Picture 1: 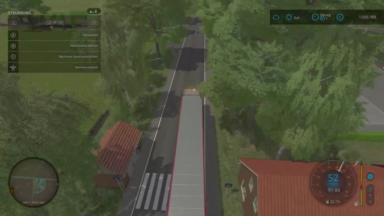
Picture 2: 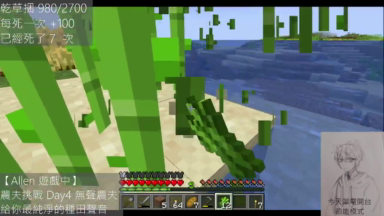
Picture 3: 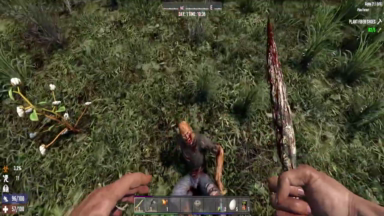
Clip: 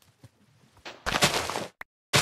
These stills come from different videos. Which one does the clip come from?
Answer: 2